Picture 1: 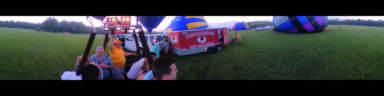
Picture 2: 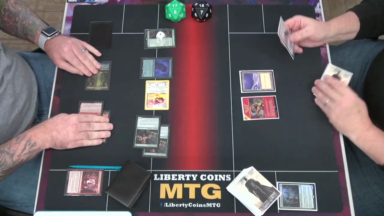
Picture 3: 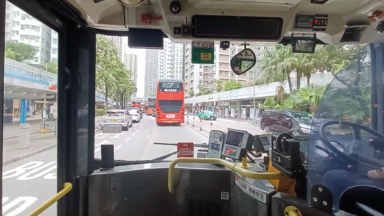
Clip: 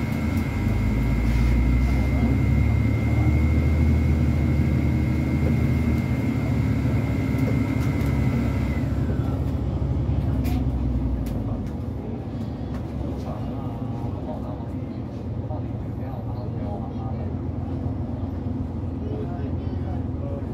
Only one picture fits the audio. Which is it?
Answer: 3